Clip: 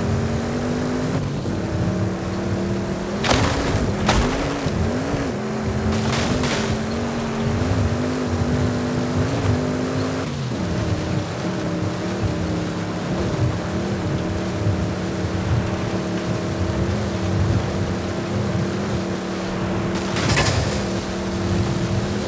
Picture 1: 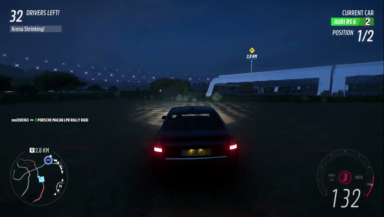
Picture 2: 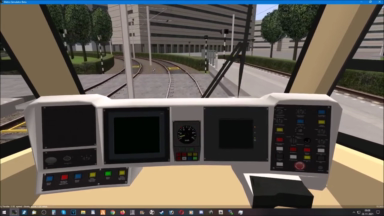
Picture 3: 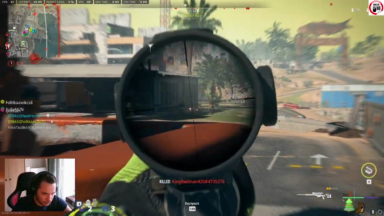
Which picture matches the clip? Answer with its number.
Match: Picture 1